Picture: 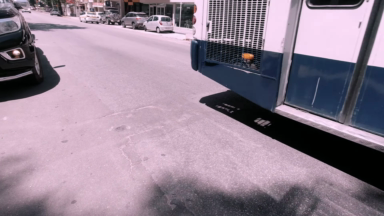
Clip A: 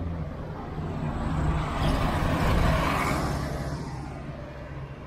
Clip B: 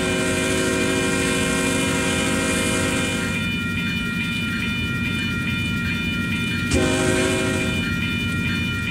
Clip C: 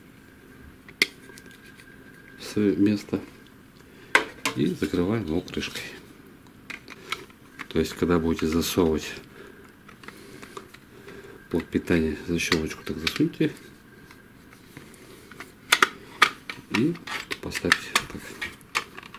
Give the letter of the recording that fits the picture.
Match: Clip A